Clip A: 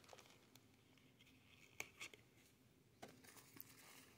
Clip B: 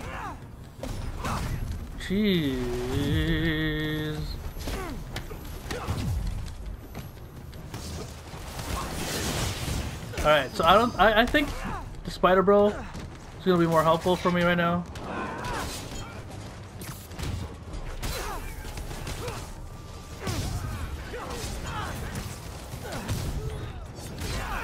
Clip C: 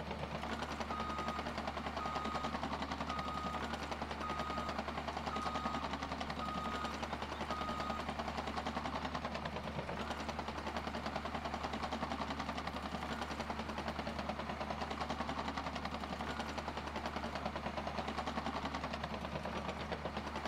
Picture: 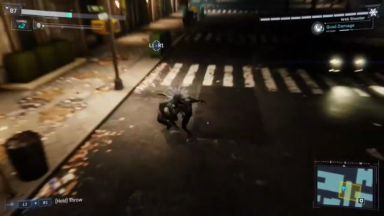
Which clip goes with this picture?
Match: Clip B